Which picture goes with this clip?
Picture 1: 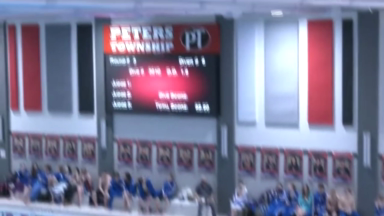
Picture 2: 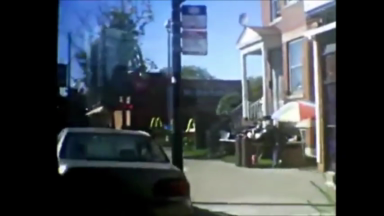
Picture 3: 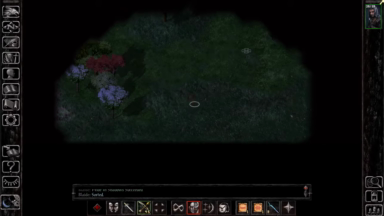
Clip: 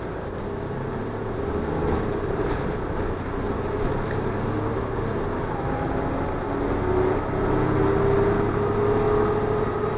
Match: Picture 2